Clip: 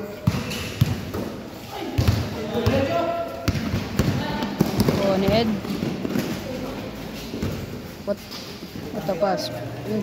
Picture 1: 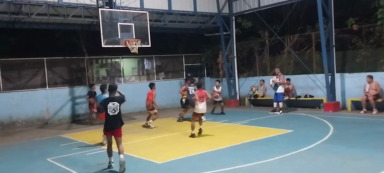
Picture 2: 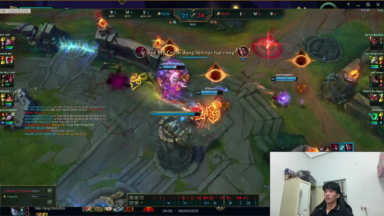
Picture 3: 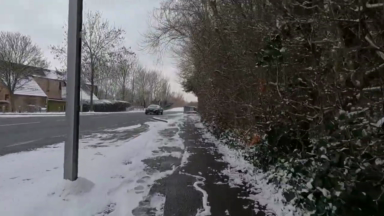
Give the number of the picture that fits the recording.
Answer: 1